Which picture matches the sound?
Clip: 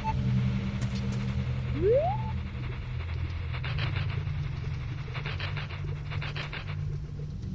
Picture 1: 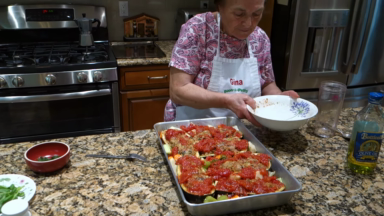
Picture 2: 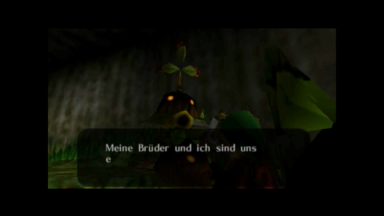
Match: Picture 2